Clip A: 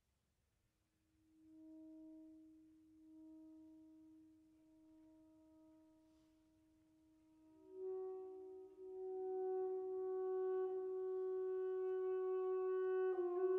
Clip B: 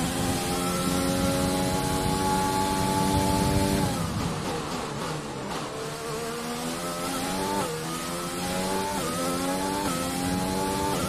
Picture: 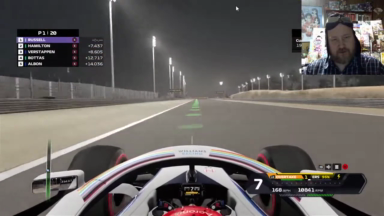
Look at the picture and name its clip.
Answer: B